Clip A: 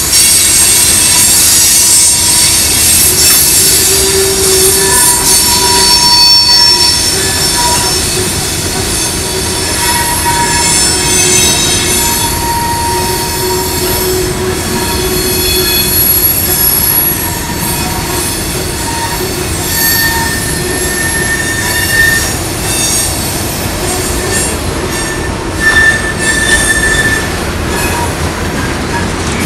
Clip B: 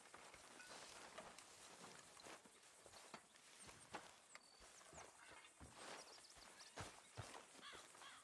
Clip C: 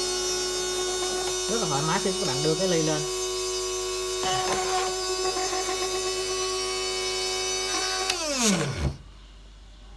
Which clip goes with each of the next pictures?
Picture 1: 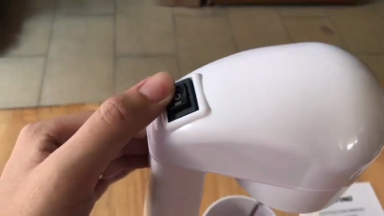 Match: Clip C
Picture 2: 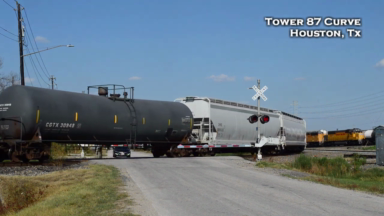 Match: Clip A